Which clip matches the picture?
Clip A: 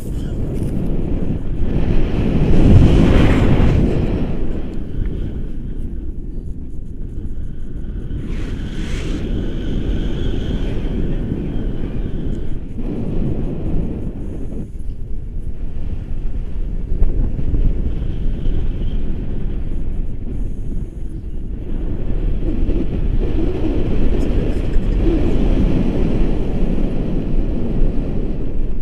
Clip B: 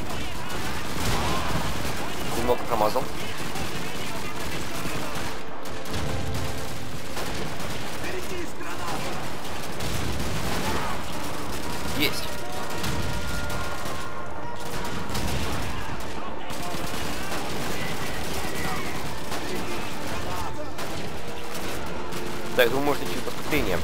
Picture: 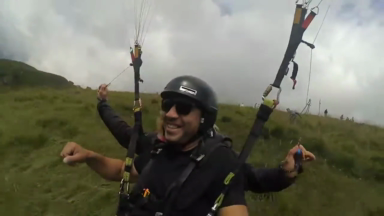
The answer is A